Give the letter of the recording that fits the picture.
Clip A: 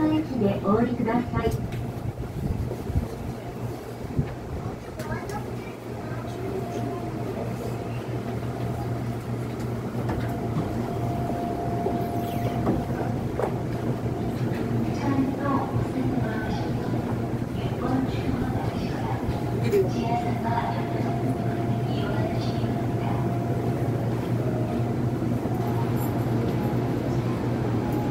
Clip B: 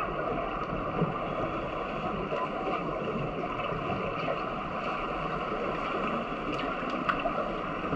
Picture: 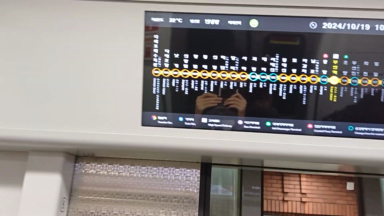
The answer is A